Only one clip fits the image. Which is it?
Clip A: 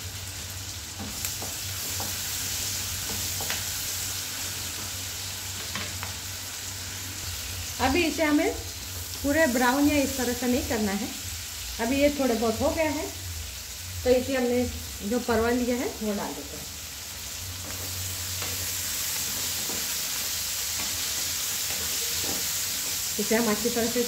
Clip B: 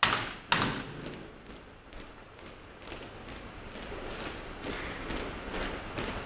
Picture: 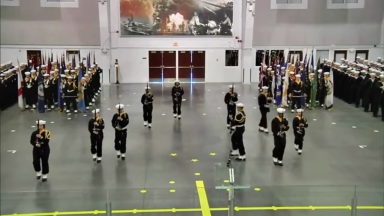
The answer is B